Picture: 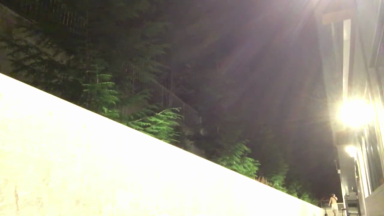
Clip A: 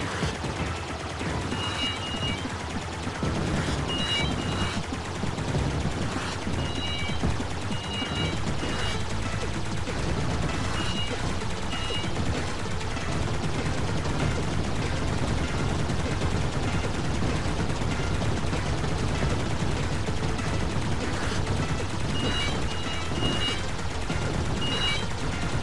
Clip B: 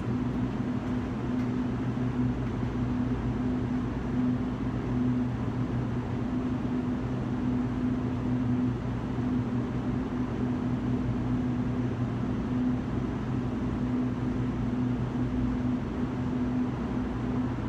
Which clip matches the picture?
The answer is B